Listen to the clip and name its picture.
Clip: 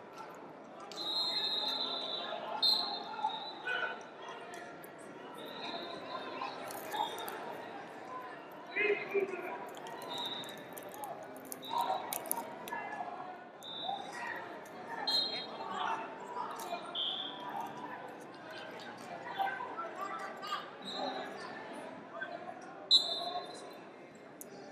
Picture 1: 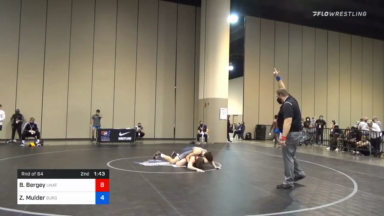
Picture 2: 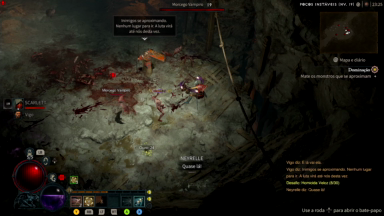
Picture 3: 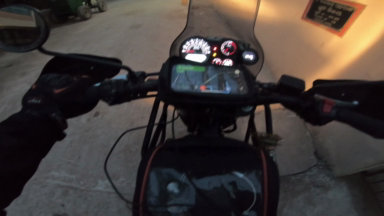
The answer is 1